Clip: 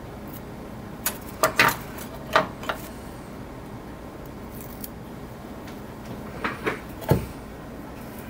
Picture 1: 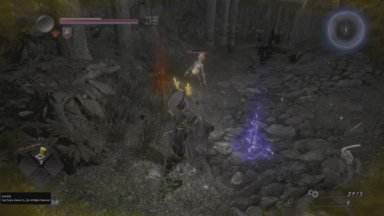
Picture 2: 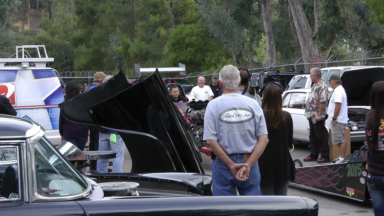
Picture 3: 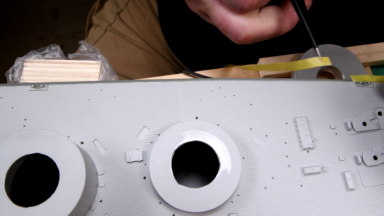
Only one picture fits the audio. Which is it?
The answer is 3